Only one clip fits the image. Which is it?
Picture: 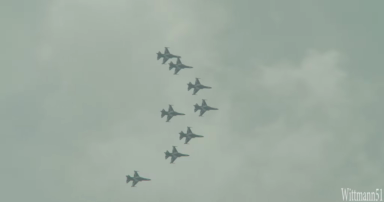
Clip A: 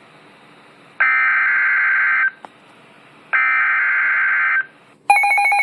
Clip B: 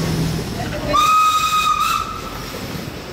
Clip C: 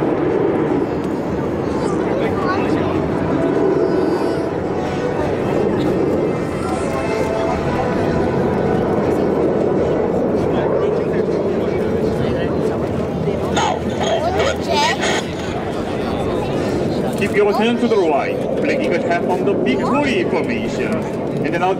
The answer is C